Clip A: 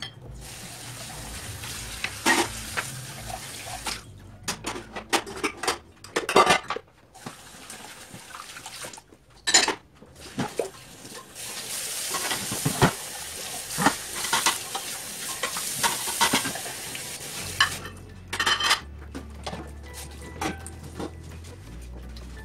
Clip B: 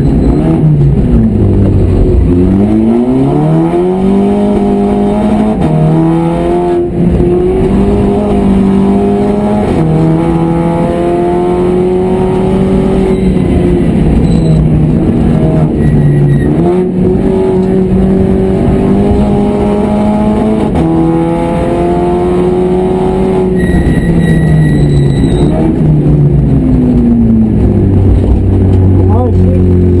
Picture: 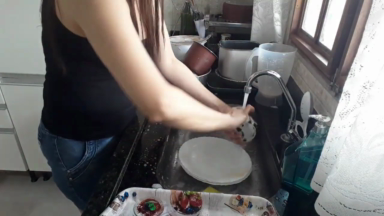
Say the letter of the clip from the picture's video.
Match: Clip A